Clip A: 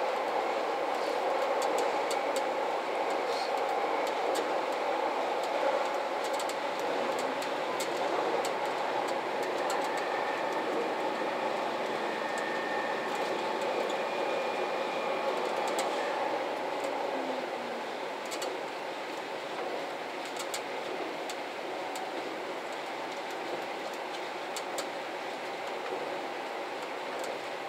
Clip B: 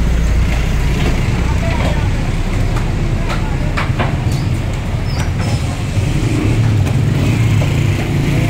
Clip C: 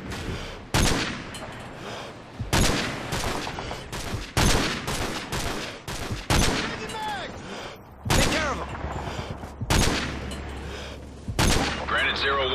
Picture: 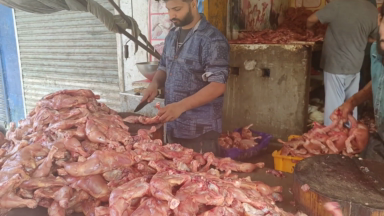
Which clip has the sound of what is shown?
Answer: B